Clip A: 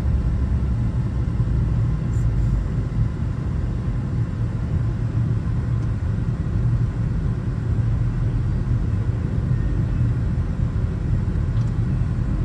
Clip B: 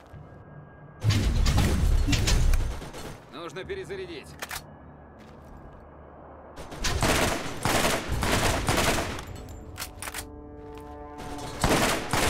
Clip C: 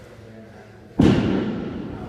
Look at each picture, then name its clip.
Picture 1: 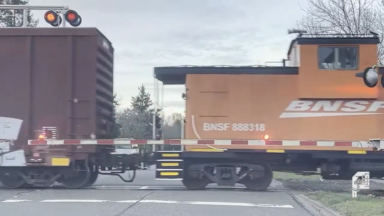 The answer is A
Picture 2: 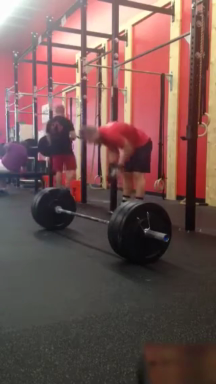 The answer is C